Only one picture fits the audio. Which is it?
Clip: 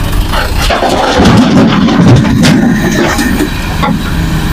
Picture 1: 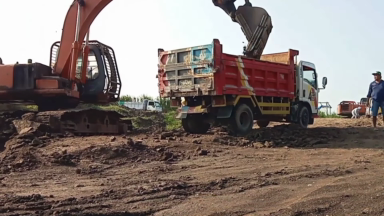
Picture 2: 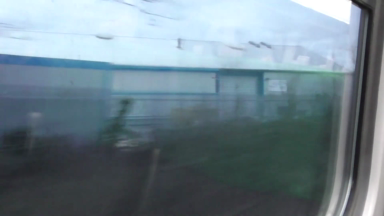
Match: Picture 1